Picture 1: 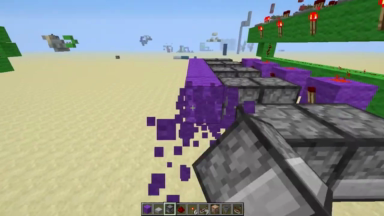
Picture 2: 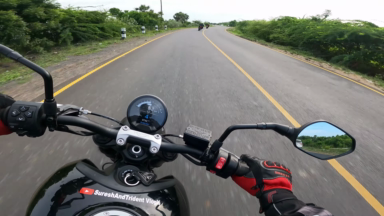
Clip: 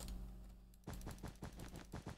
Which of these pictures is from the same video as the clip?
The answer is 1